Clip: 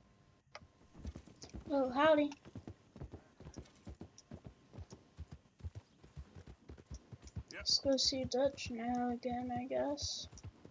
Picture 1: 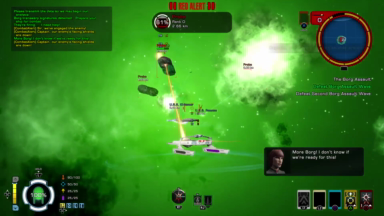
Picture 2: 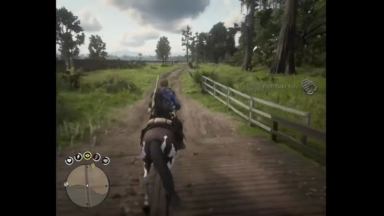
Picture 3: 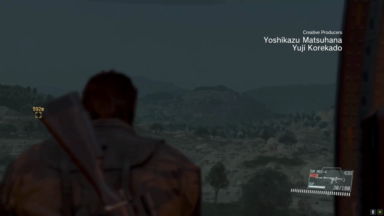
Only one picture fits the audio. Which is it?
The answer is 2